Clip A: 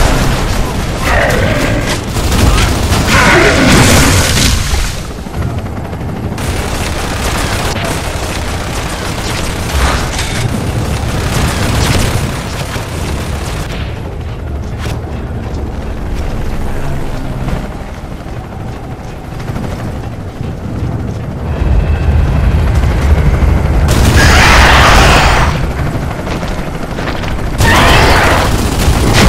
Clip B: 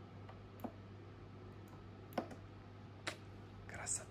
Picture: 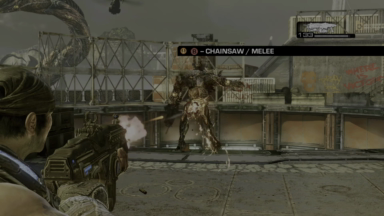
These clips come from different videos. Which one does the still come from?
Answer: A